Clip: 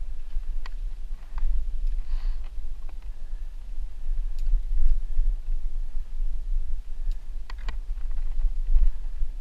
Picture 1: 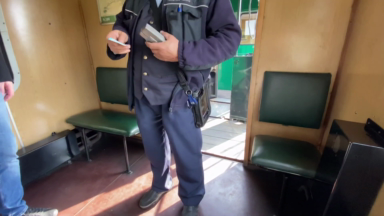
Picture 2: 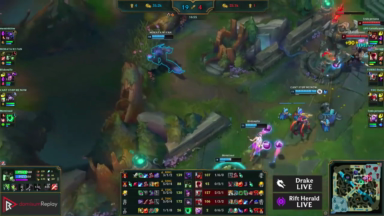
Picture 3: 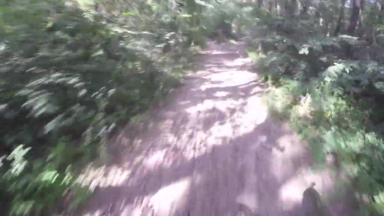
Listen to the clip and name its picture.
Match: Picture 3